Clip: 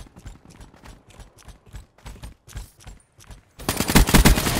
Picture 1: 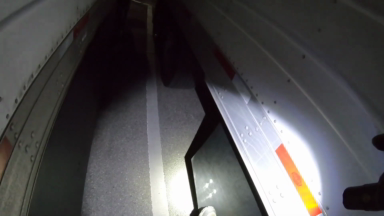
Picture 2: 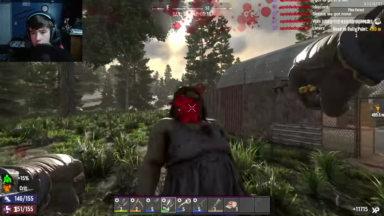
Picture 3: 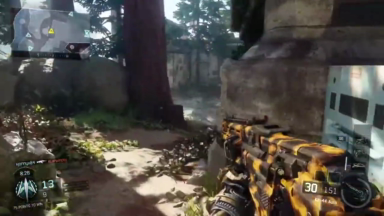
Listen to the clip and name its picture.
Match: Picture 3